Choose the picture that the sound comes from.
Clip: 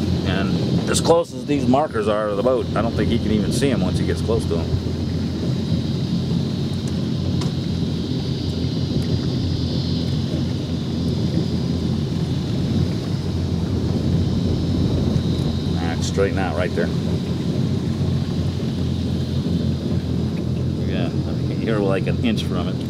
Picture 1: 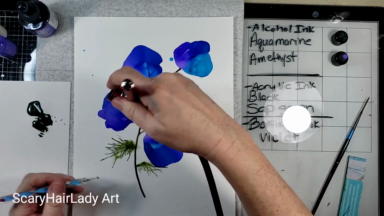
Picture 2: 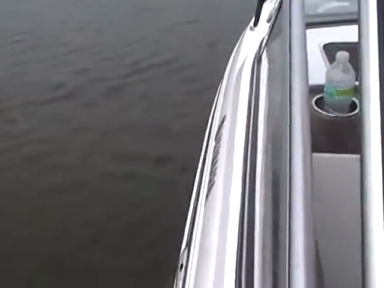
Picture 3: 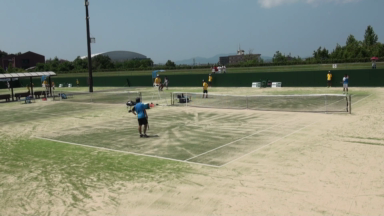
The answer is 2